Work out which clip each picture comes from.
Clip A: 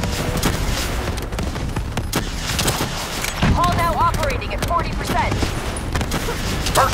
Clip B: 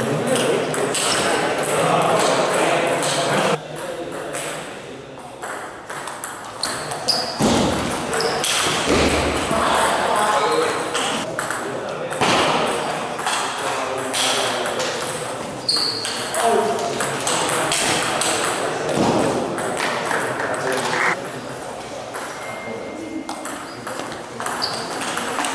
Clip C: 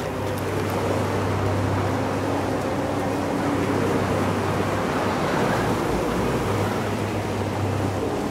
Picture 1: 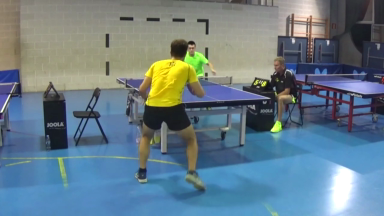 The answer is B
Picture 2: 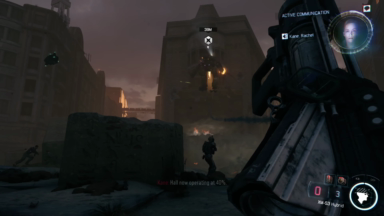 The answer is A